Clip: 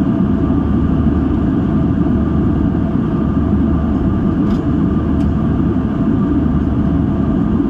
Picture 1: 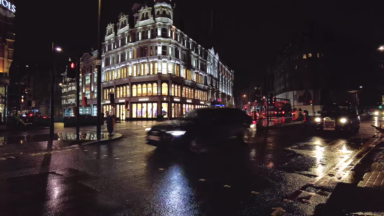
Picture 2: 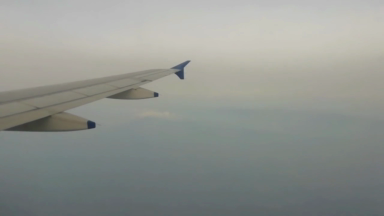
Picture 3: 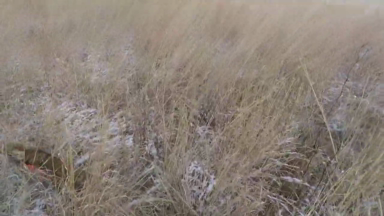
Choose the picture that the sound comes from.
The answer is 2